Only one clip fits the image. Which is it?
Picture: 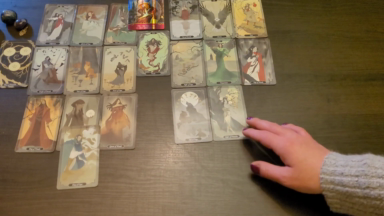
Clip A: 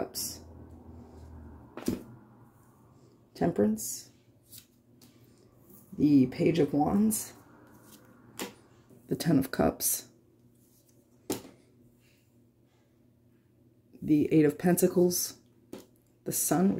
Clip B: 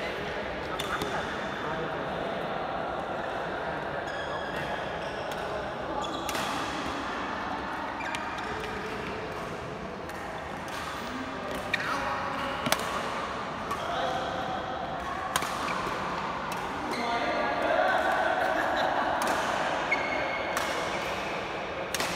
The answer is A